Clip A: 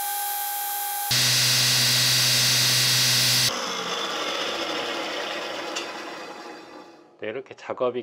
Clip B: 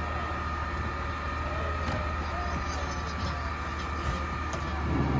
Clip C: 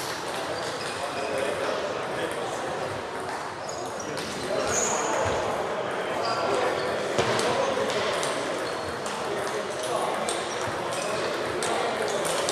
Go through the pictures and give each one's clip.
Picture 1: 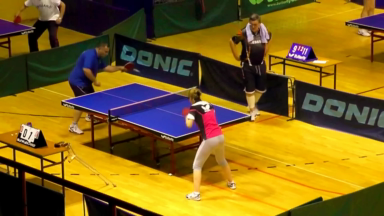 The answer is C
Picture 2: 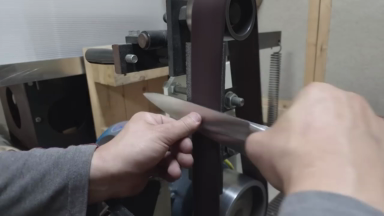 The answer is A